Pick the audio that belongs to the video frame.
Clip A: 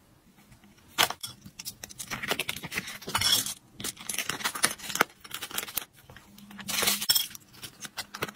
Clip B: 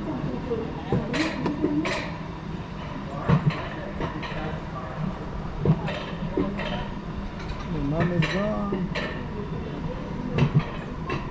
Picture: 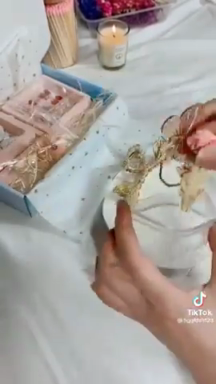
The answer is A